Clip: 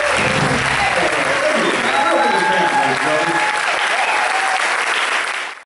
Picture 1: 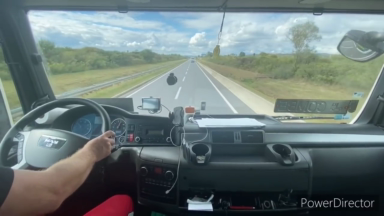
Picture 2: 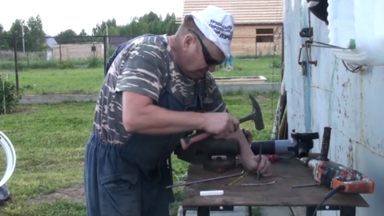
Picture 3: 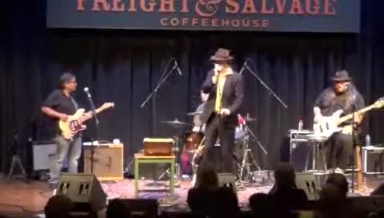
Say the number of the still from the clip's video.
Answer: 3